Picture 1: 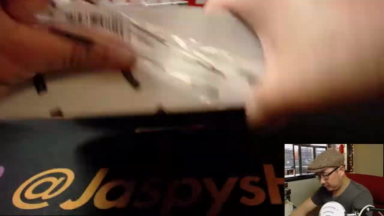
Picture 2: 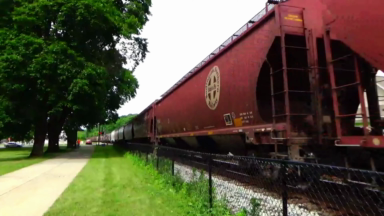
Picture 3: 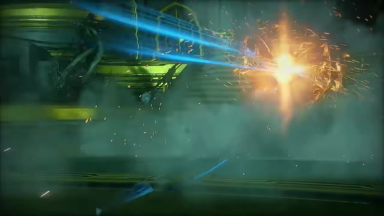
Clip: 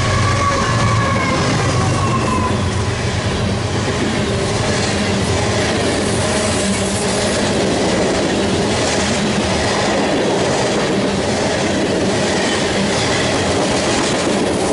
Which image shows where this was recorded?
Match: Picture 2